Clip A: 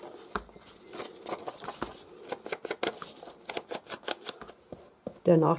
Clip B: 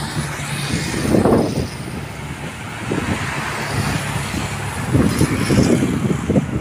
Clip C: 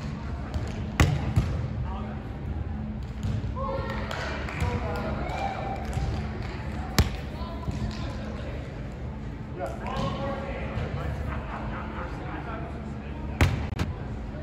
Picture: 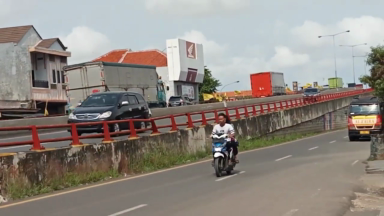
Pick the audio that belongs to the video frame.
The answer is B